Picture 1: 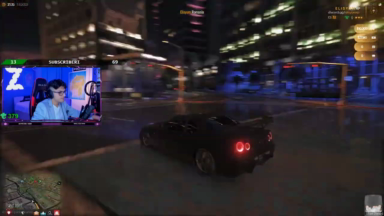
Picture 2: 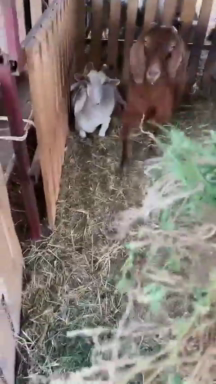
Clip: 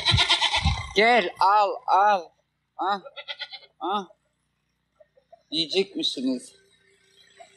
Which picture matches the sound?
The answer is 2